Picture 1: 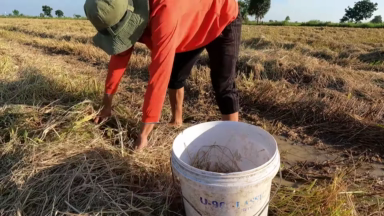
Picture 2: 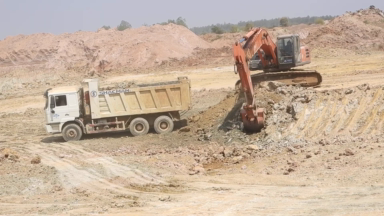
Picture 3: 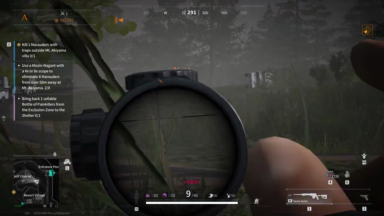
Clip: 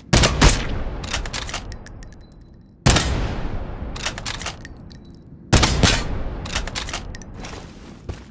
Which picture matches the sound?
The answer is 3